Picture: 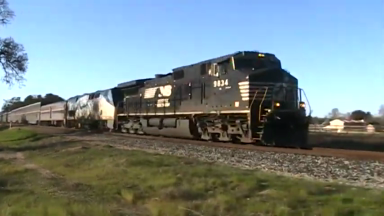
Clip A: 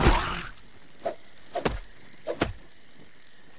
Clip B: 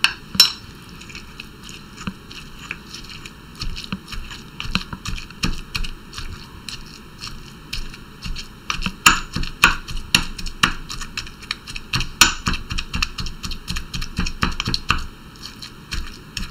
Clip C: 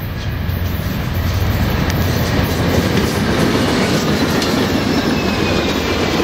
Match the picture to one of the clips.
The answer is C